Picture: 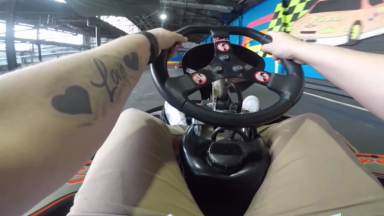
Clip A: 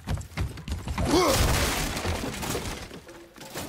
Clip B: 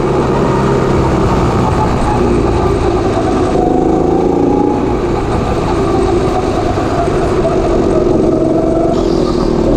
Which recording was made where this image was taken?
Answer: B